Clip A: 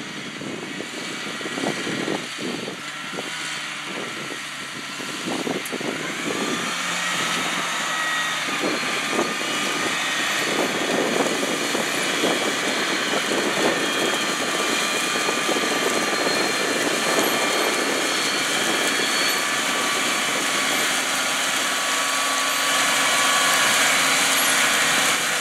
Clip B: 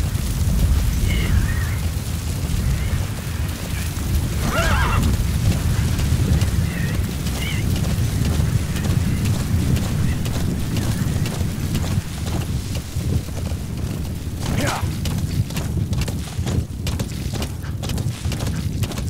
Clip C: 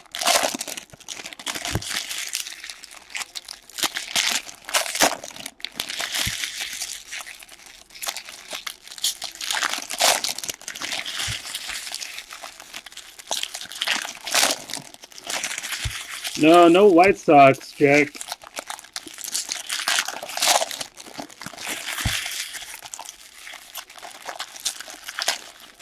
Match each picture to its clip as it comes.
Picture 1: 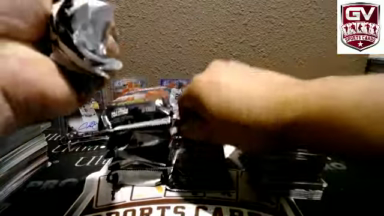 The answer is C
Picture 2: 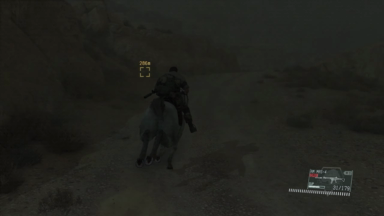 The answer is B